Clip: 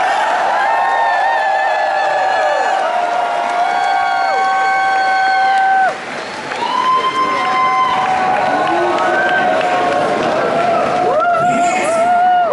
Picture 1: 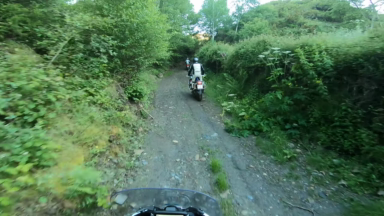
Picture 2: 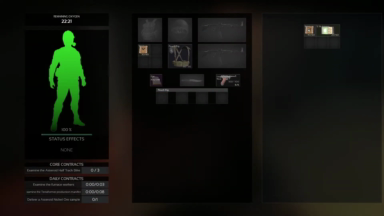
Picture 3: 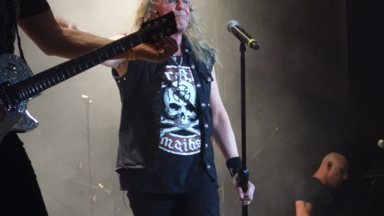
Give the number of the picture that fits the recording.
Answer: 3